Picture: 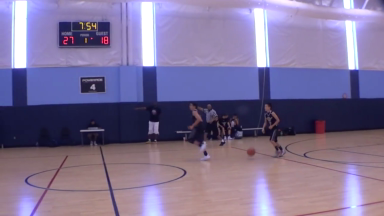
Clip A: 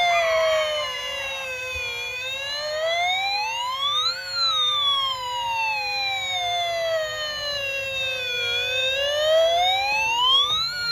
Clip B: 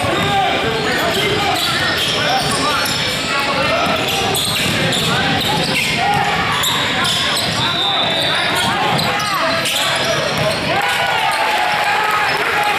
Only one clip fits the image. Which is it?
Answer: B